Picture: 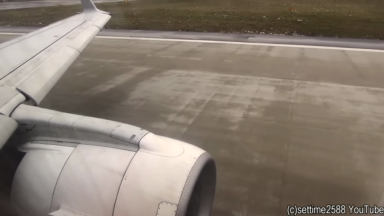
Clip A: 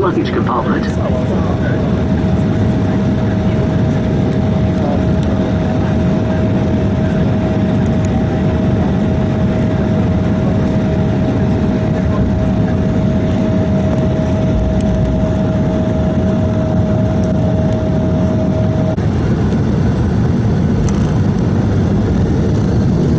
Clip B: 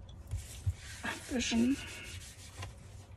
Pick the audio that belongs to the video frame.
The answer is A